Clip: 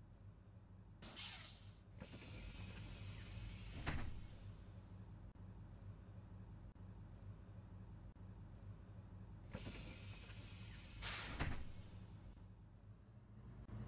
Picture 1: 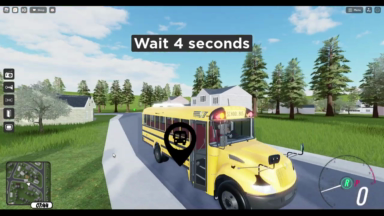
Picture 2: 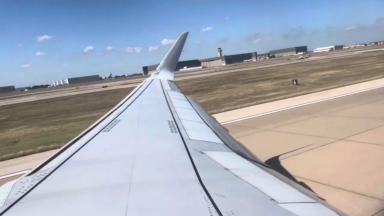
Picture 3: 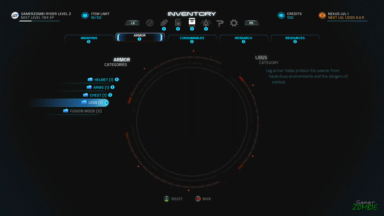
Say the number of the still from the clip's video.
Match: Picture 1